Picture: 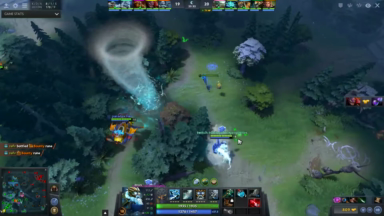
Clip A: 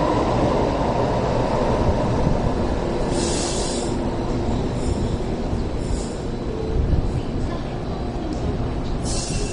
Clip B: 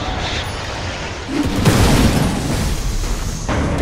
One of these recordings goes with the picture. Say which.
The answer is B